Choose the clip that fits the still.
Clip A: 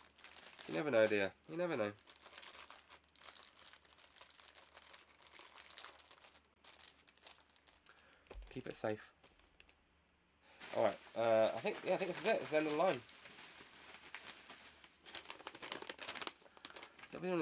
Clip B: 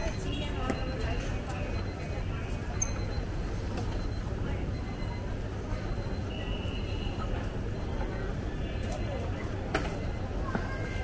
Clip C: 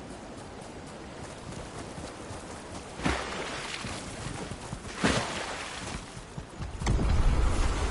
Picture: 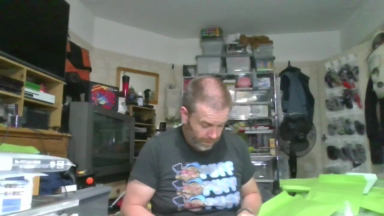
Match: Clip A